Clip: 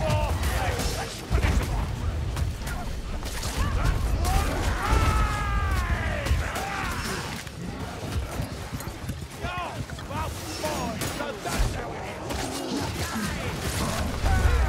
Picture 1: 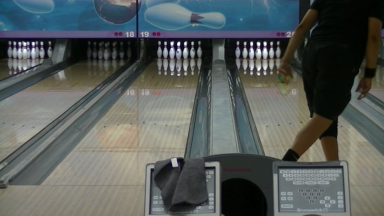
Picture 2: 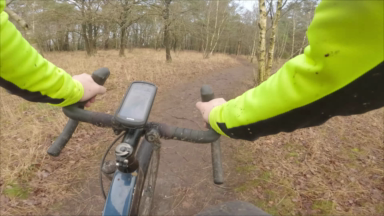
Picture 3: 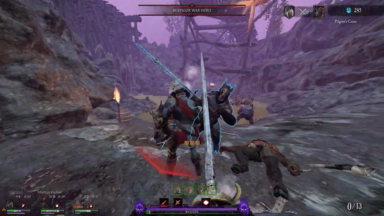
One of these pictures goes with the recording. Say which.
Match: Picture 3